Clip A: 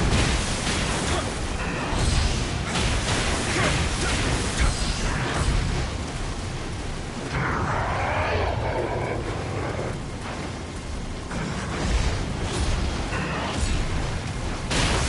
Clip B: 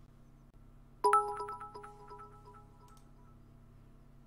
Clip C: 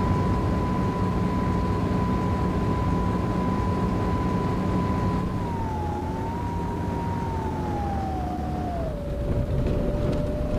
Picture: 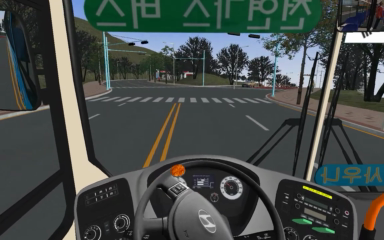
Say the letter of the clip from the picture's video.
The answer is C